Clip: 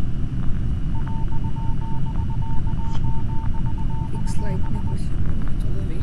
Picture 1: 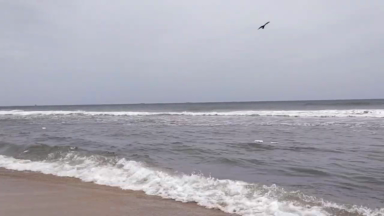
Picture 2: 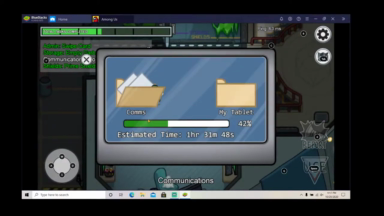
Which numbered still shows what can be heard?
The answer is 2